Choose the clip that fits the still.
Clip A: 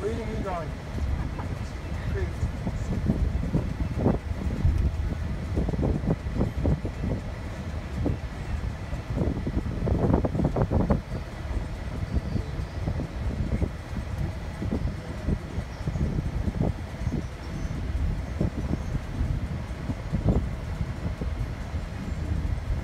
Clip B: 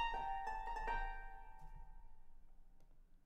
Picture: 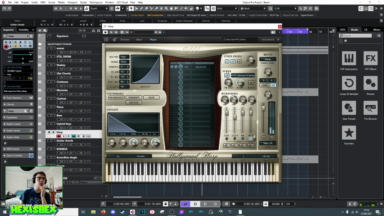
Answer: B